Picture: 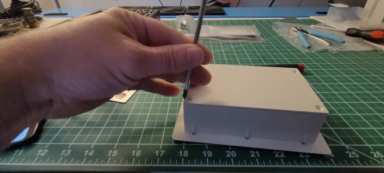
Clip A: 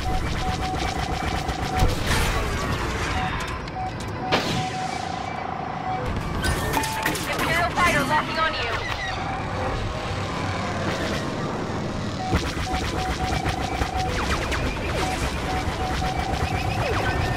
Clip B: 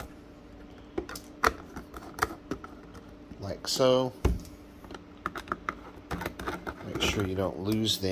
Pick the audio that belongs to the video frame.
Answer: B